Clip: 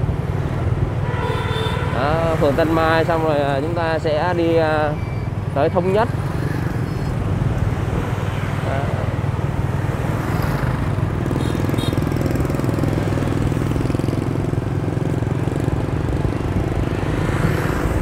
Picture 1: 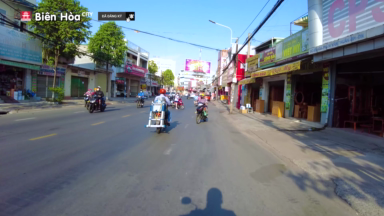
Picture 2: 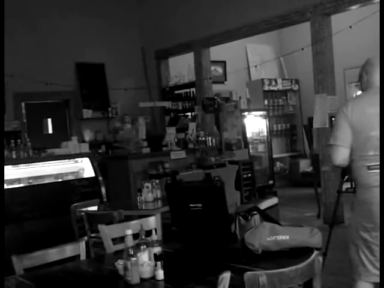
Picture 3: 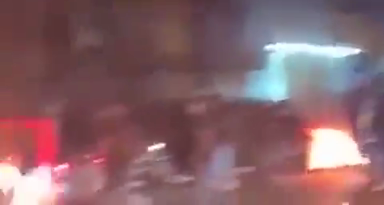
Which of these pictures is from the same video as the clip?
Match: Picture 1